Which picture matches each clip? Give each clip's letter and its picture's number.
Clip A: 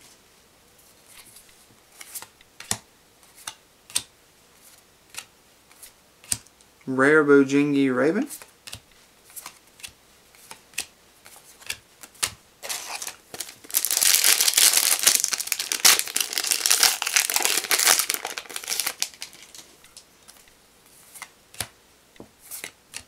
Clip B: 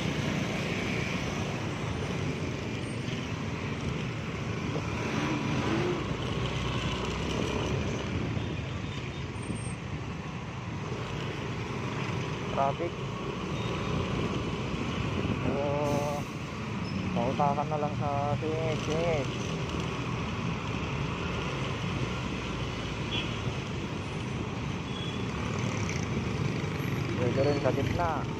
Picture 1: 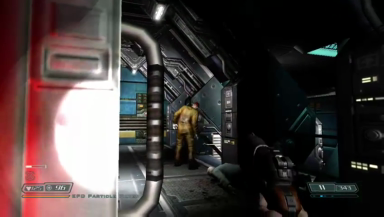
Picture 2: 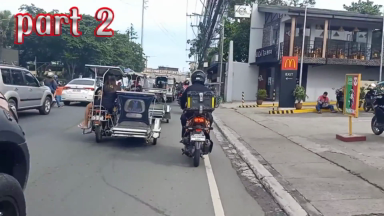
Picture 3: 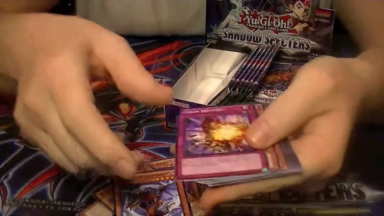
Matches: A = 3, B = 2